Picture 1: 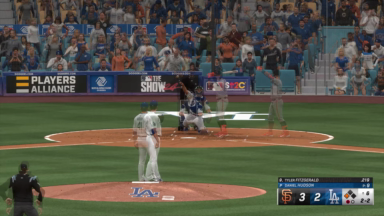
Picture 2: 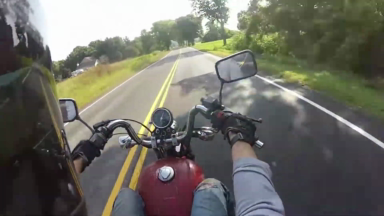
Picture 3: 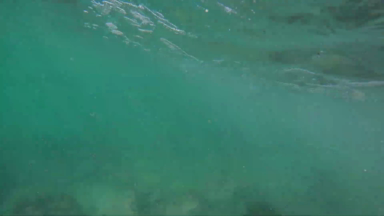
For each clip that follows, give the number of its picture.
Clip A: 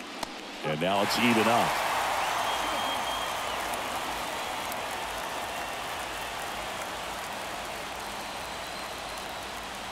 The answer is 1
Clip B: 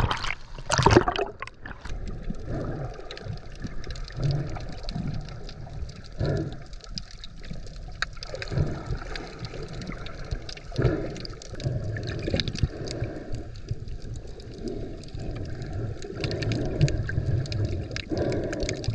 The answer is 3